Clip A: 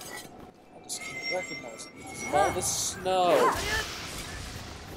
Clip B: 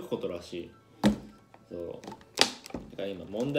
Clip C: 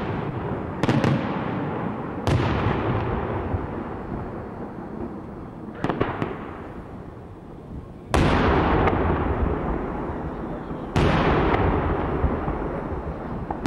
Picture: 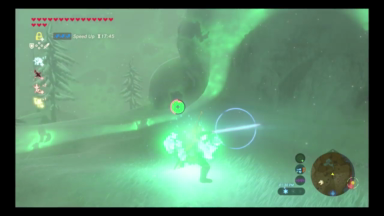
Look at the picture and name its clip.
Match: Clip A